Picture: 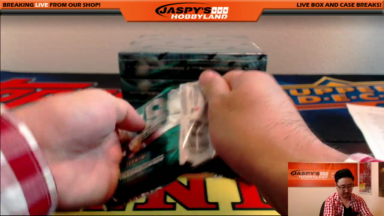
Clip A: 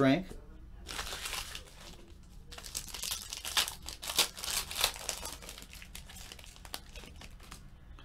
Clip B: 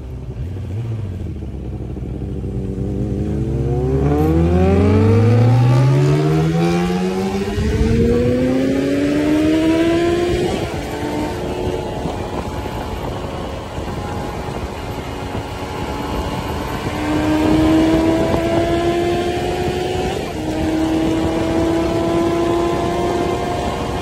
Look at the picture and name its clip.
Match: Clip A